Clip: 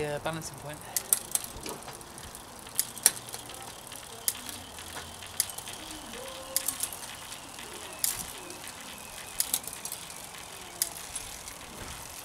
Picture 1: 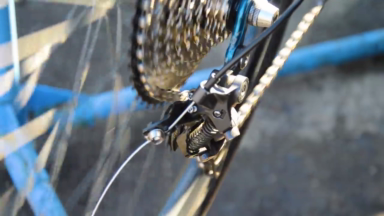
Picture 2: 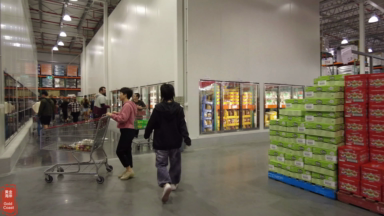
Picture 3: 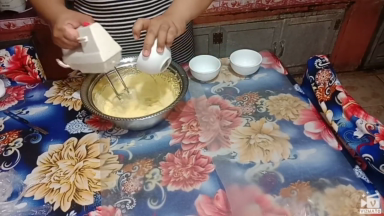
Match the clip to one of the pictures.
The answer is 1